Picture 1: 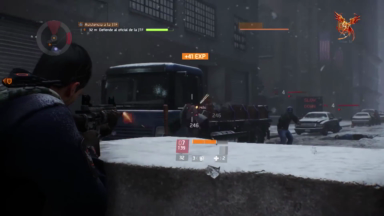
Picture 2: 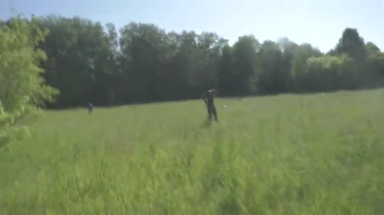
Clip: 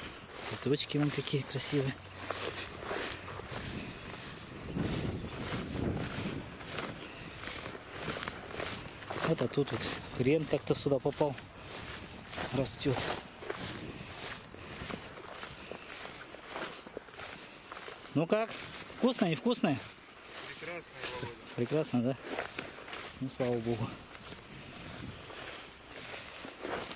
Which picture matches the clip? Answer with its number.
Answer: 2